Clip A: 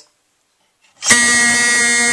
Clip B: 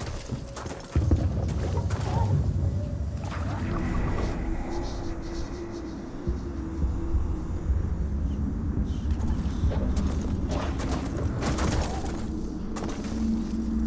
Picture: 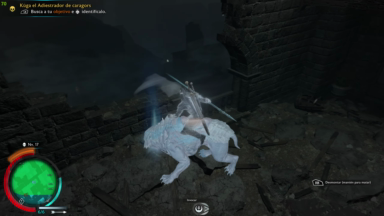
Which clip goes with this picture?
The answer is B